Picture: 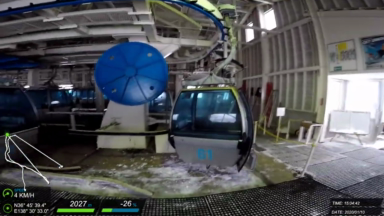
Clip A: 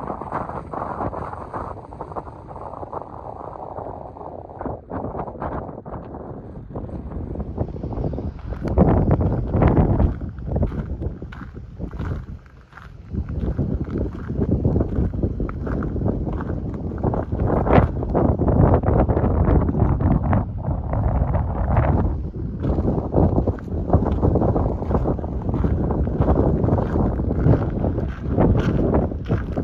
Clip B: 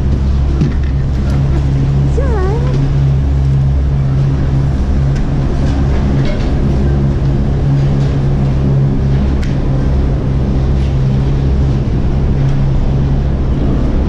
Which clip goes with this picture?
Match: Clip B